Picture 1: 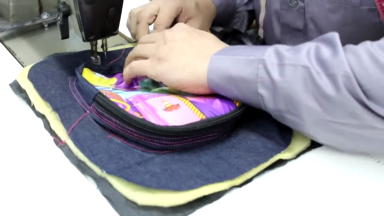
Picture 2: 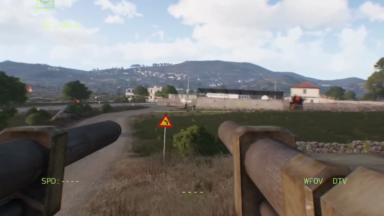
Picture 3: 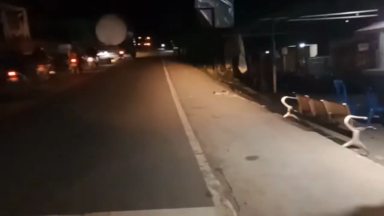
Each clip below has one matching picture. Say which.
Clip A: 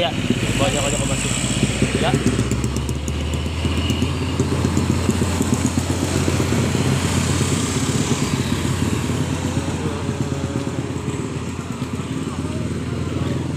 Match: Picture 3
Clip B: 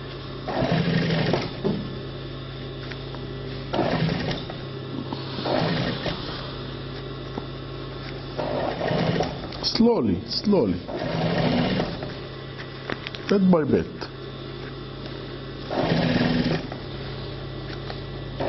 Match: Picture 1